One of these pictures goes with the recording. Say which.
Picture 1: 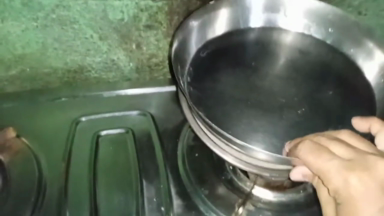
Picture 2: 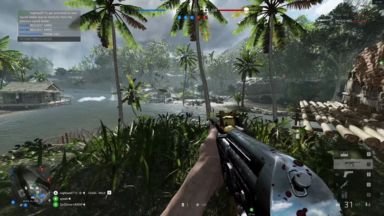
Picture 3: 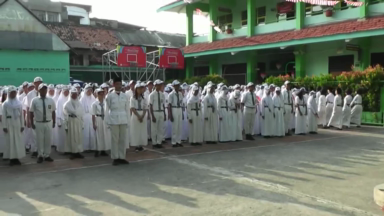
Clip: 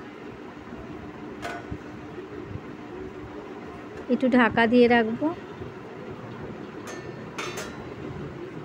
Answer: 1